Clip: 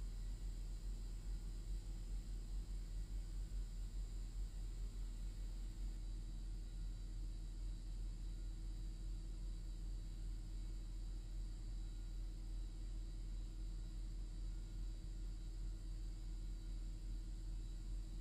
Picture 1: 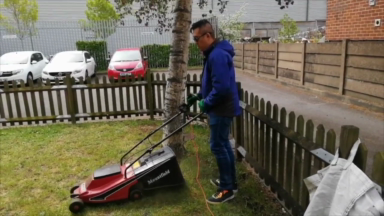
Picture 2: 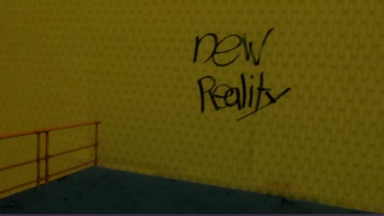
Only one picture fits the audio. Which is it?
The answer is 2